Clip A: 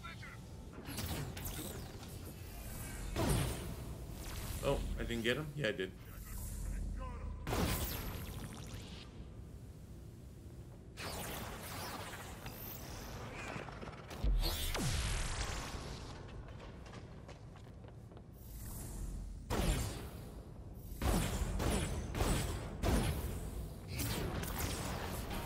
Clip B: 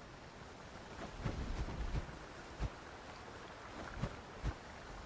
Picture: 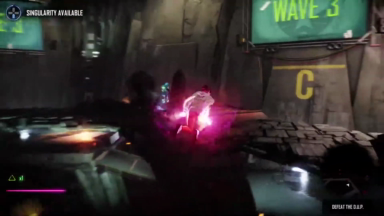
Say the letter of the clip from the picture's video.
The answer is A